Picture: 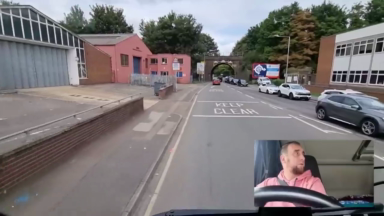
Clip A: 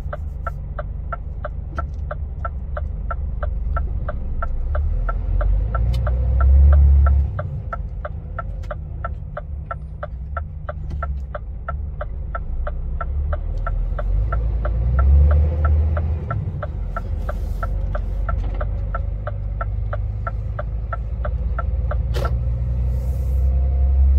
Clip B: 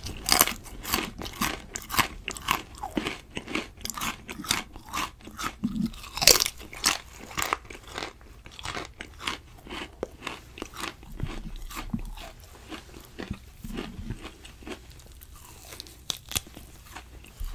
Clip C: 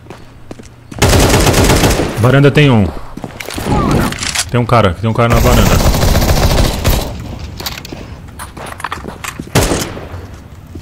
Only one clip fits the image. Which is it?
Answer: A